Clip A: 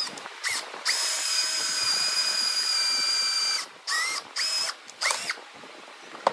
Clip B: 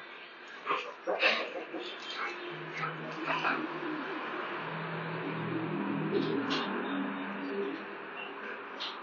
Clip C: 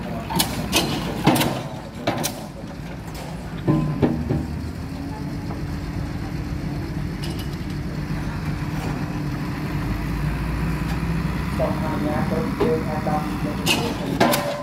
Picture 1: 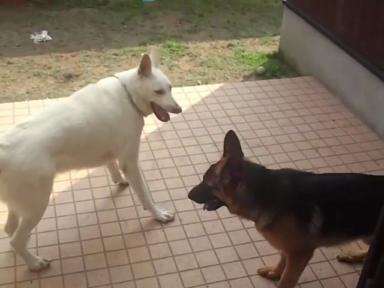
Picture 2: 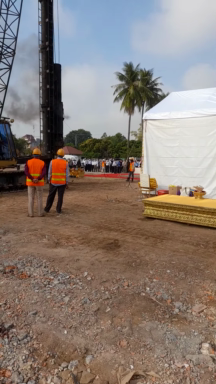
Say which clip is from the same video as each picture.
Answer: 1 B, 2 C